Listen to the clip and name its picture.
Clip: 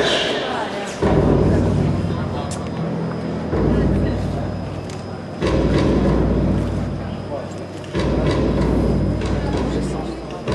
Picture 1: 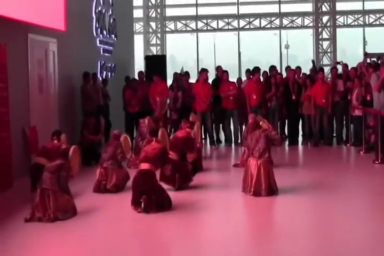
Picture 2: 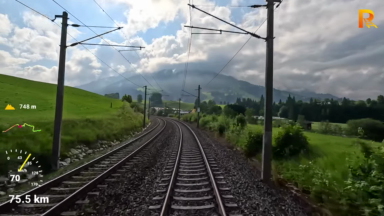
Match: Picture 1